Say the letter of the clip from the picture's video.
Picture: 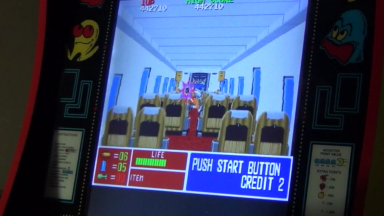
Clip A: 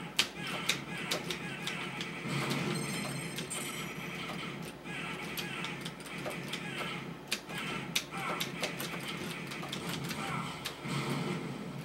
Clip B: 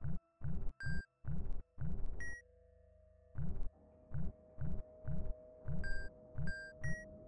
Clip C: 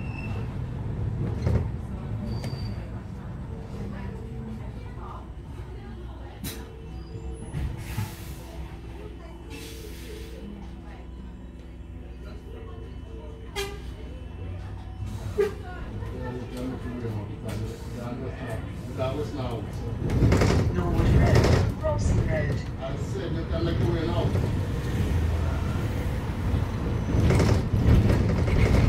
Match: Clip A